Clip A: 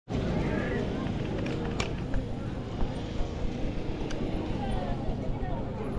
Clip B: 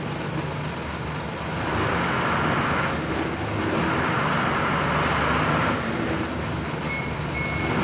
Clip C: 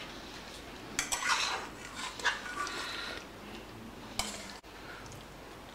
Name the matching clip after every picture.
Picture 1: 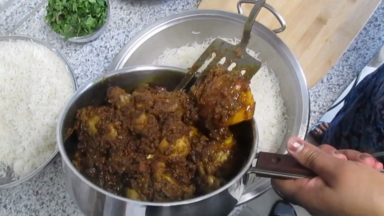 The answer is C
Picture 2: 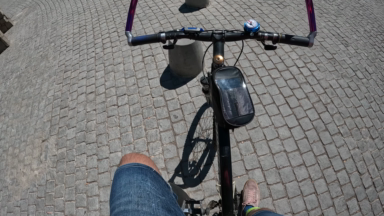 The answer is A